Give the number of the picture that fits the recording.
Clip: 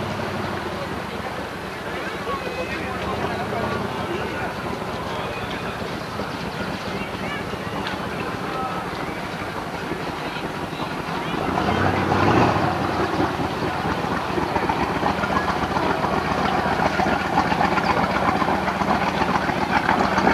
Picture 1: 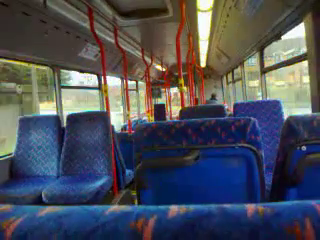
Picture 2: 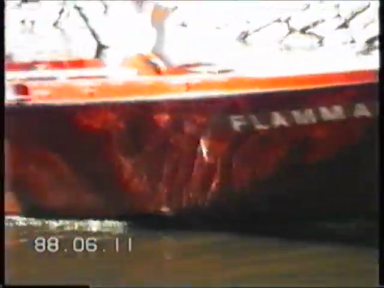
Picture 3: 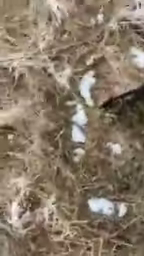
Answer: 2